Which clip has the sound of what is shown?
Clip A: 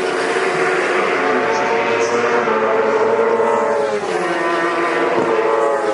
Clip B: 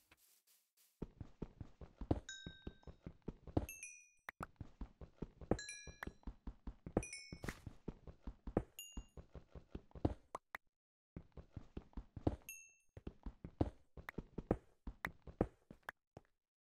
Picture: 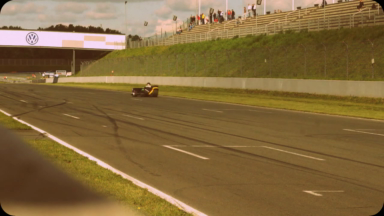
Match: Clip A